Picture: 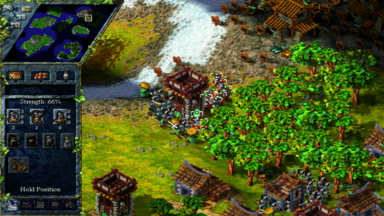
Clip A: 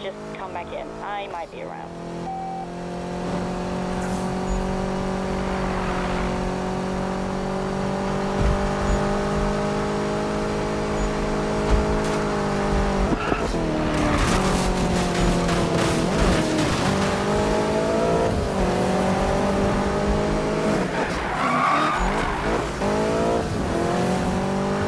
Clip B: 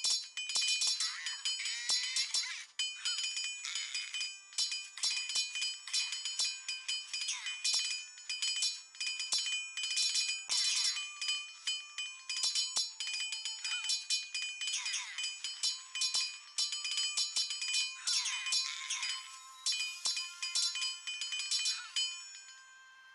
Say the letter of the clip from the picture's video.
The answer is B